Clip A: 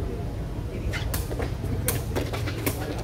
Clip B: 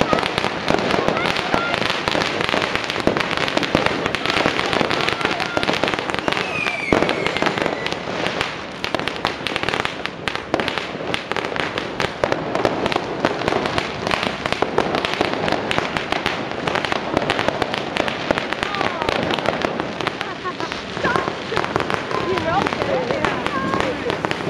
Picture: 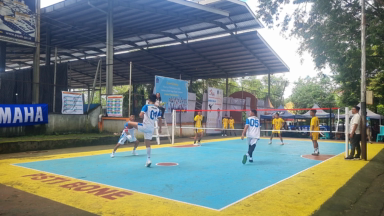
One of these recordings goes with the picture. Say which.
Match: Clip A